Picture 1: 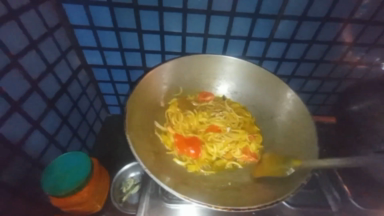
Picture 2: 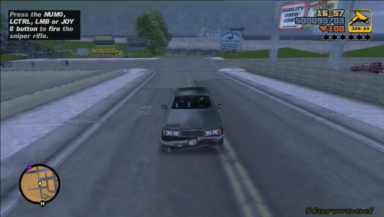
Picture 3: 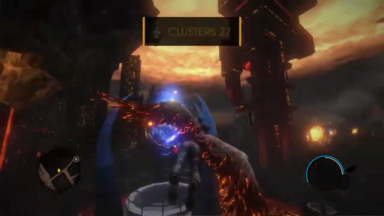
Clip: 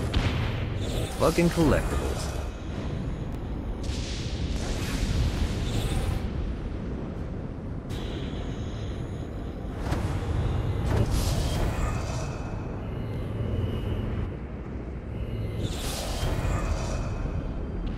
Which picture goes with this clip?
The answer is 3